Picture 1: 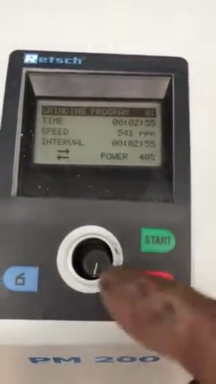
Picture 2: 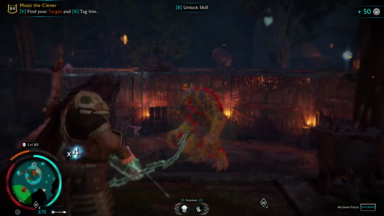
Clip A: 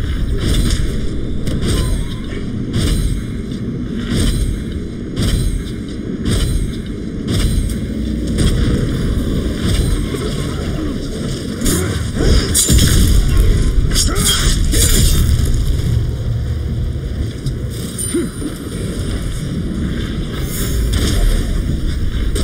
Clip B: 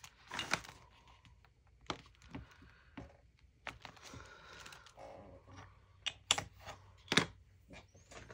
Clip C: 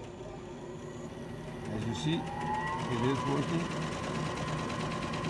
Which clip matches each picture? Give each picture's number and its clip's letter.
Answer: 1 C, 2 A